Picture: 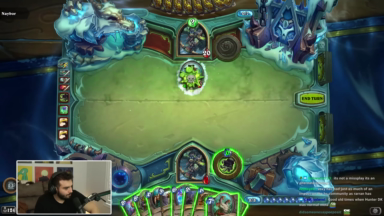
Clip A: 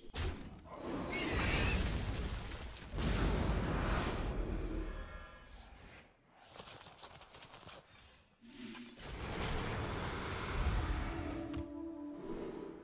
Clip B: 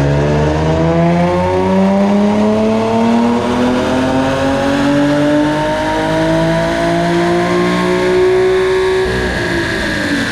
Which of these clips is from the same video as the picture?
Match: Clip A